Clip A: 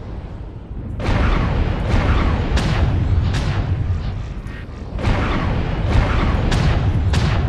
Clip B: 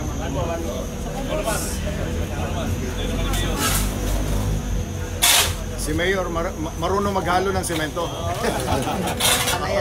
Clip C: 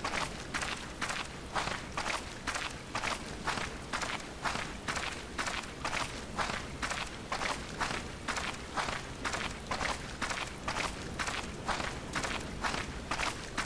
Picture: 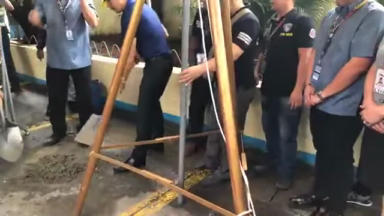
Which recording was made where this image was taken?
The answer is B